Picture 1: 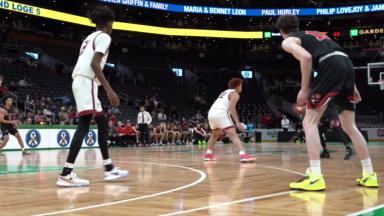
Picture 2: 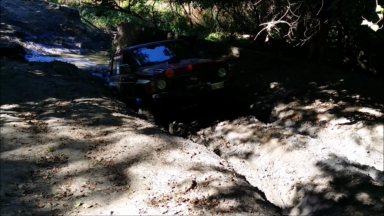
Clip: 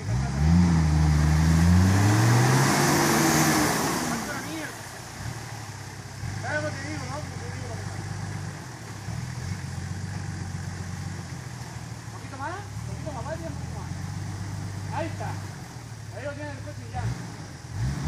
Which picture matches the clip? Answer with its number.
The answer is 2